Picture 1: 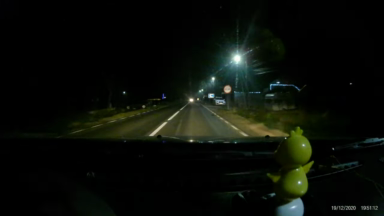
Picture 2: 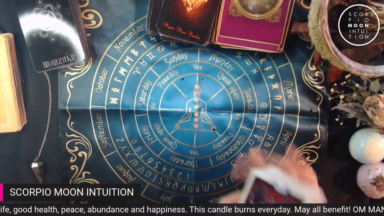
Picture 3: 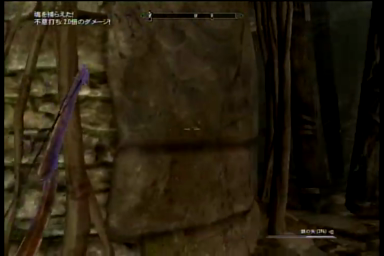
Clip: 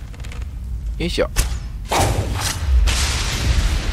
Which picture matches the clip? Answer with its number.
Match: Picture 3